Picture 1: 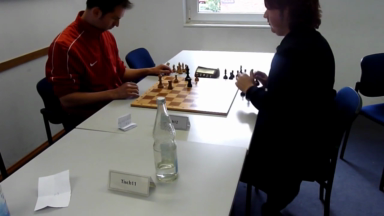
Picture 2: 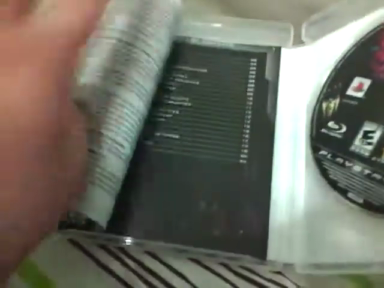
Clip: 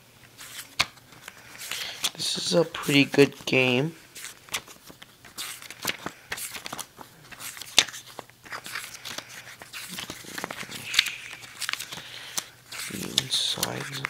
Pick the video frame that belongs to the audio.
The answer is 2